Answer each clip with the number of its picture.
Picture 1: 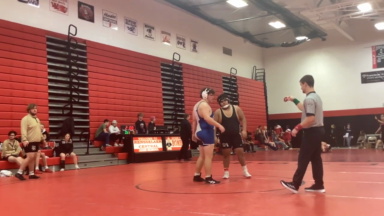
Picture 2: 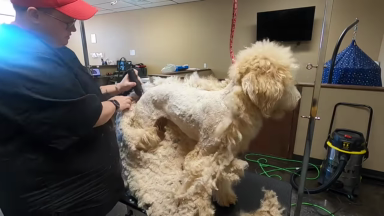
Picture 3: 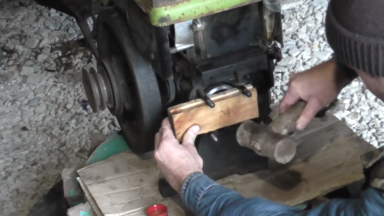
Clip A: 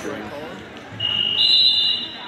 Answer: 1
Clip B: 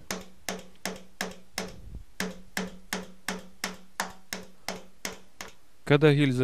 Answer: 3